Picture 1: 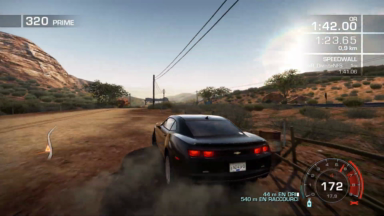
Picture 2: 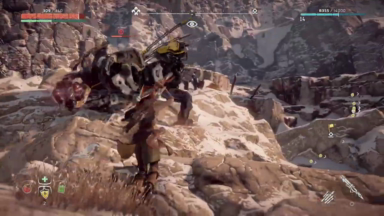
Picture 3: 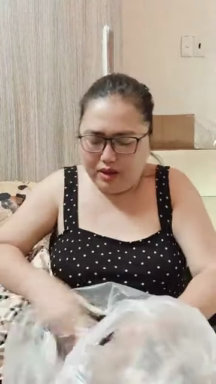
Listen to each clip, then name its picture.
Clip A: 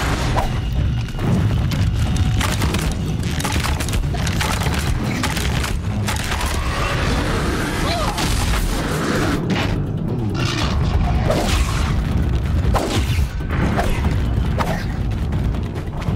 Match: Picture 2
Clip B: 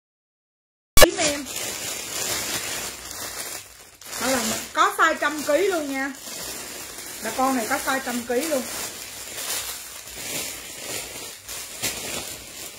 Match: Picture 3